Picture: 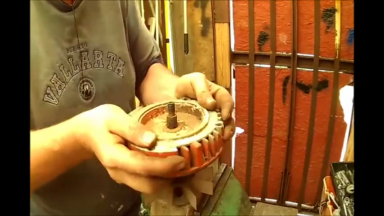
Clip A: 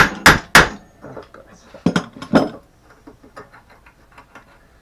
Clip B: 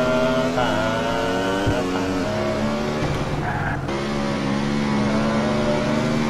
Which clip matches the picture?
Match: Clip A